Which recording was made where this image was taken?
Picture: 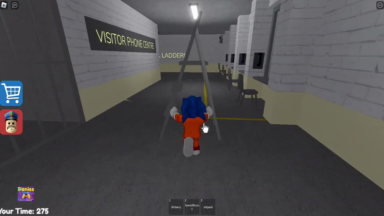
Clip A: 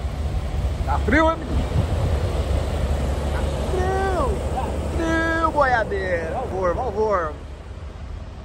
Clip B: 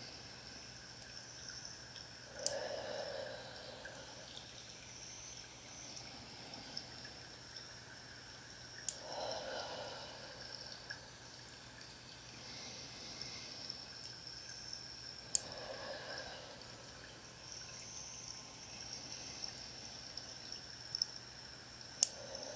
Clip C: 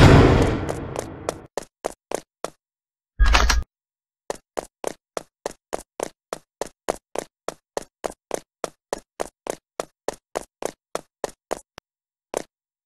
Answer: C